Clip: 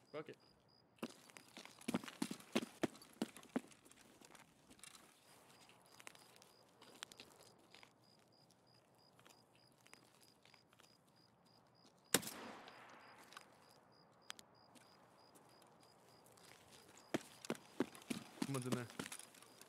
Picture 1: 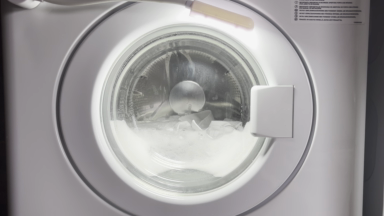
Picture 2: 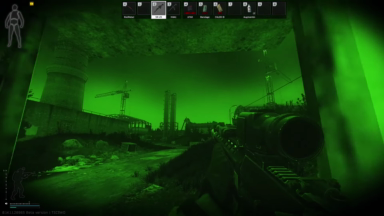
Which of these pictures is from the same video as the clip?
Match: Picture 2